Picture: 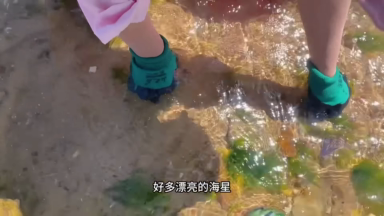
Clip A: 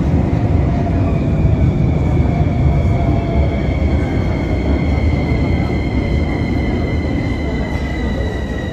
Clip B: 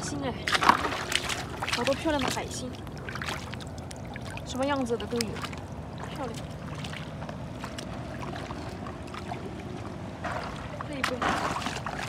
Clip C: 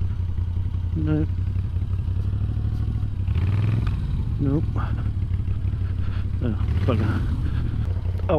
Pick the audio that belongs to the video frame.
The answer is B